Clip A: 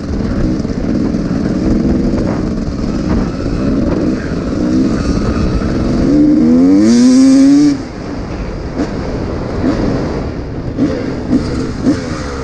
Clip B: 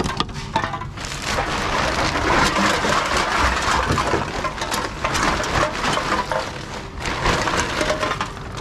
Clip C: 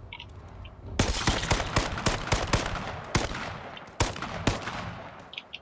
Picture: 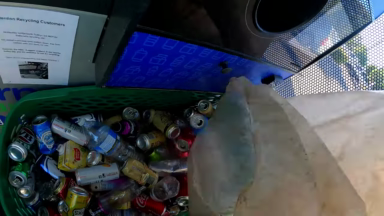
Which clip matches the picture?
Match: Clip B